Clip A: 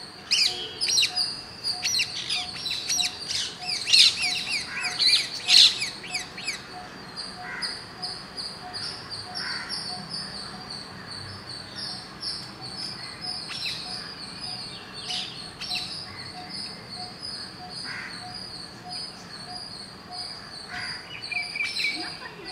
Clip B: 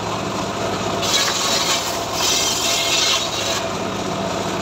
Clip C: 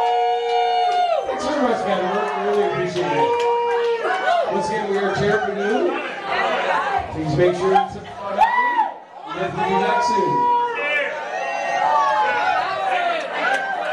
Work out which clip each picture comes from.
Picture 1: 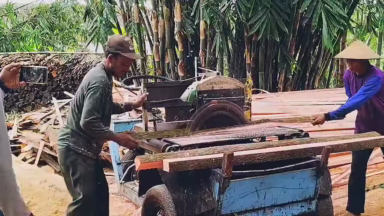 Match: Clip B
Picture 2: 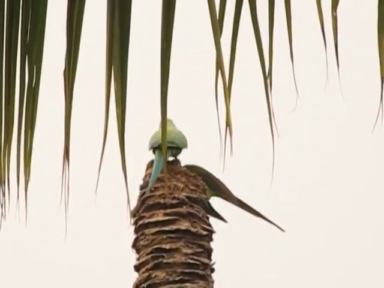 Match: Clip A